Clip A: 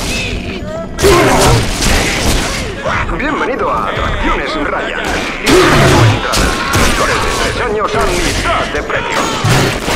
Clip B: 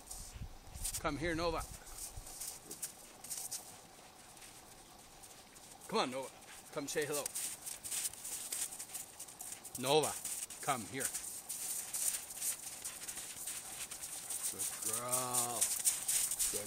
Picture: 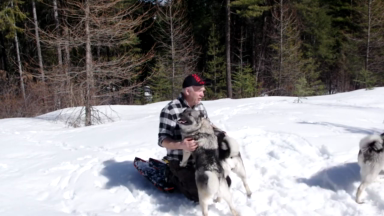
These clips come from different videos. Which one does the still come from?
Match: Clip B